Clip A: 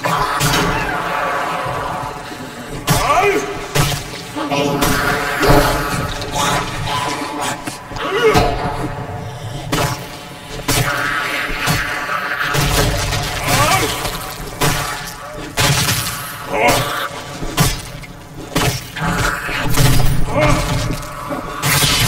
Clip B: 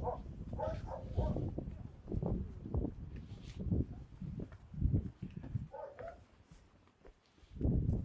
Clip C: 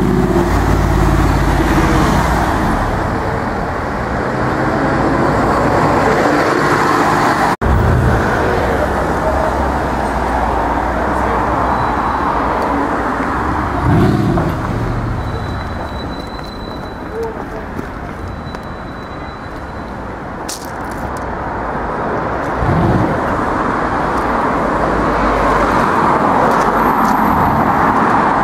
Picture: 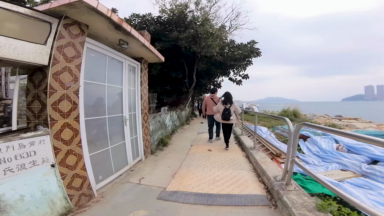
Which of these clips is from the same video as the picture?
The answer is B